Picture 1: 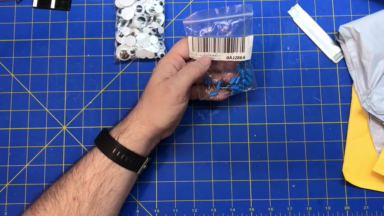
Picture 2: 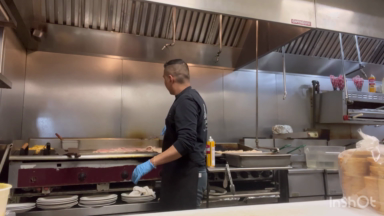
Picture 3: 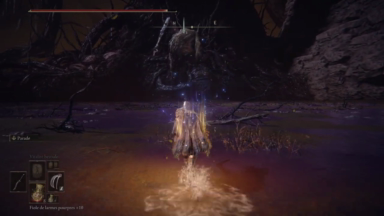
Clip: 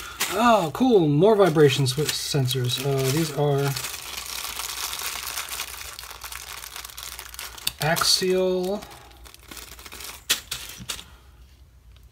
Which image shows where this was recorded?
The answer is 1